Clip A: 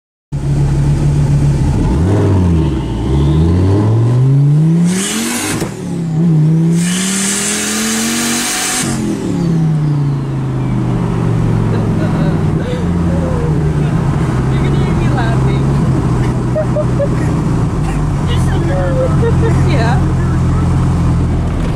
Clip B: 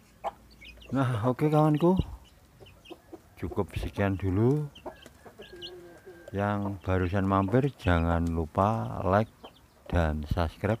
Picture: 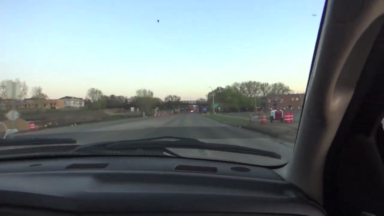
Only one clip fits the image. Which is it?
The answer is A